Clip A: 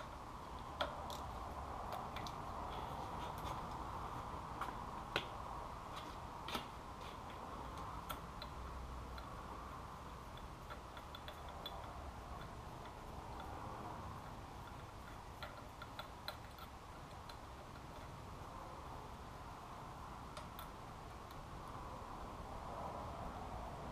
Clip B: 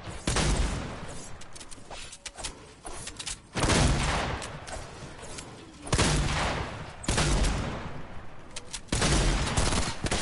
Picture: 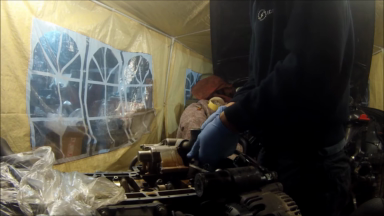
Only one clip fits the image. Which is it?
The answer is A